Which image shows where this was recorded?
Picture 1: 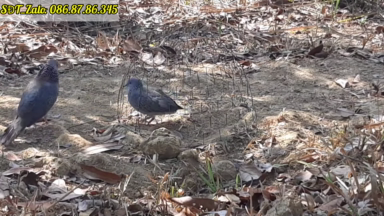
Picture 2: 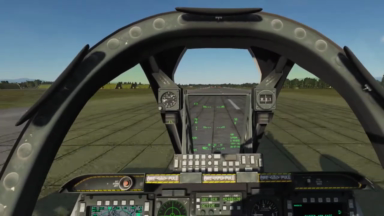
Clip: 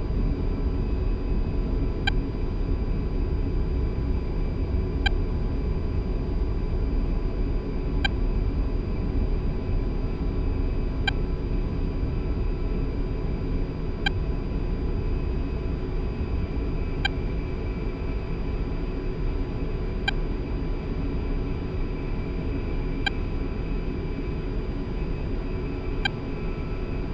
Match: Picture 2